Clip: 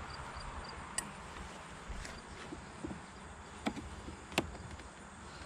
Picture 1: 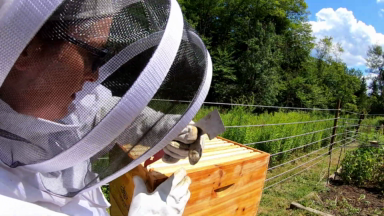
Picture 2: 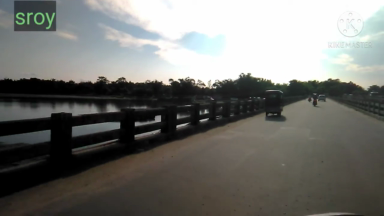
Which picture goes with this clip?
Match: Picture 1